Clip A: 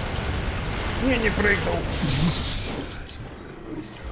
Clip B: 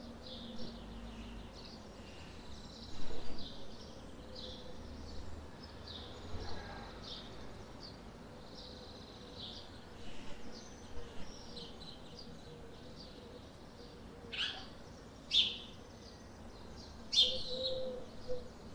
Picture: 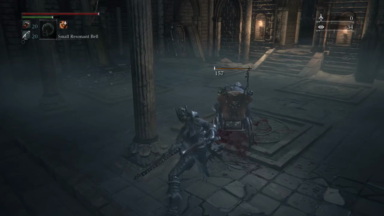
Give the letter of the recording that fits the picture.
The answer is A